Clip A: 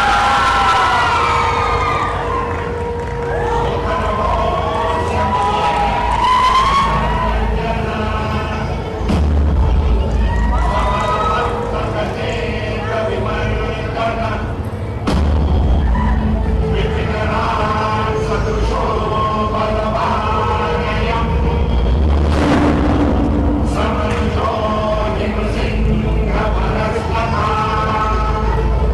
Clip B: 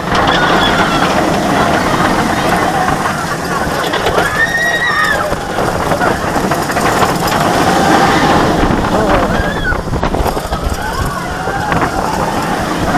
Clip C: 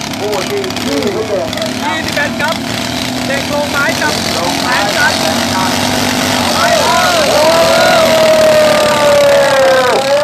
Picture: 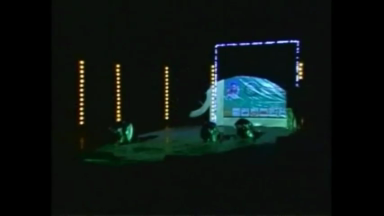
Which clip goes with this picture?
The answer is A